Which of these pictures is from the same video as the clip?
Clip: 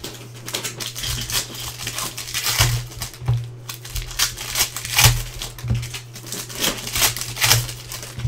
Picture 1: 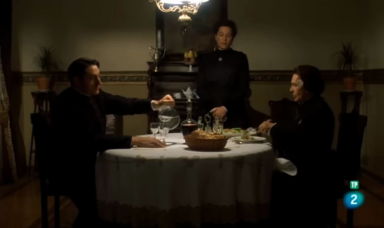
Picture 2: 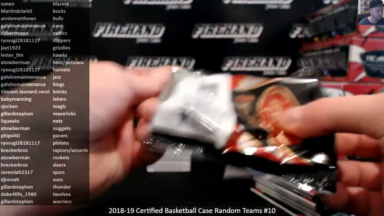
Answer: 2